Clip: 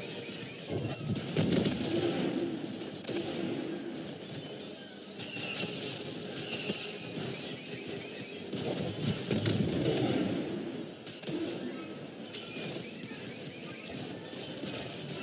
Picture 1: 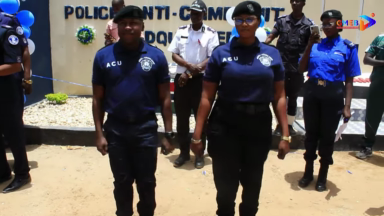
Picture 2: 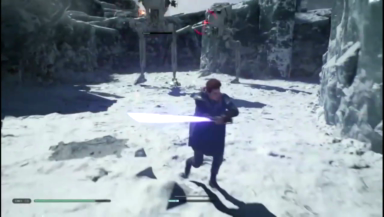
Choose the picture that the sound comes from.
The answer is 2